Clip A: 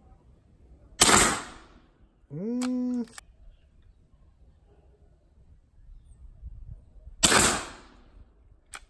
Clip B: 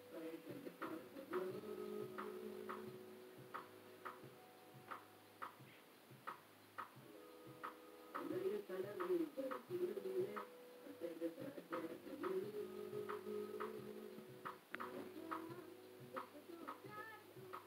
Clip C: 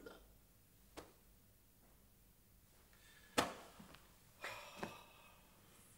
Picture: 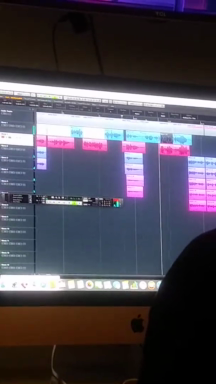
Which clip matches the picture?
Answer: B